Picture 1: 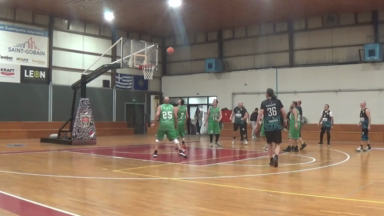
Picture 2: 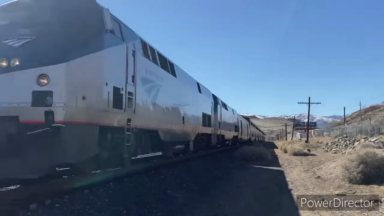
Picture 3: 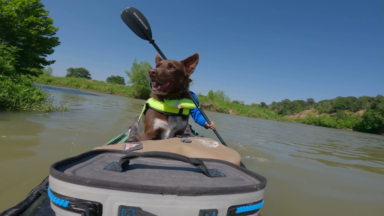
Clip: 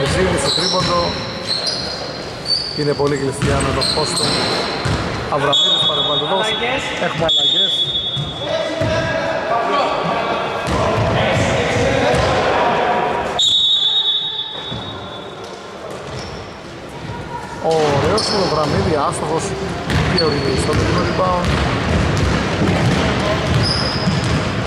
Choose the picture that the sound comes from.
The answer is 1